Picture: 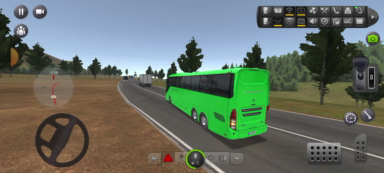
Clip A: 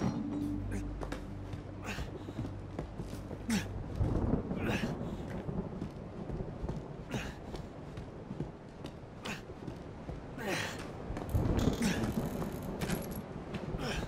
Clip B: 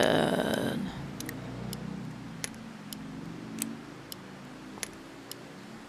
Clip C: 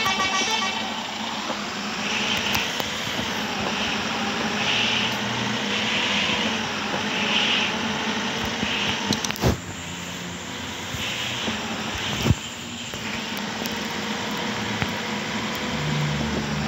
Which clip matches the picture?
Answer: C